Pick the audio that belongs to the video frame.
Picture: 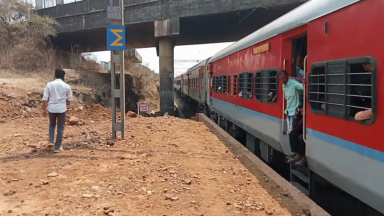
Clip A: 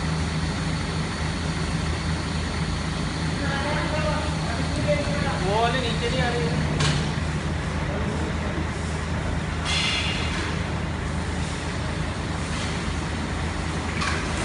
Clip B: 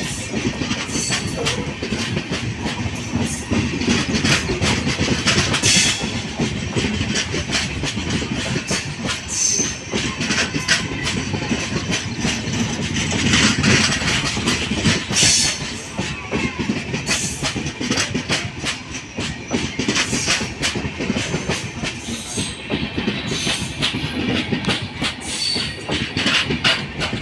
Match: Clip B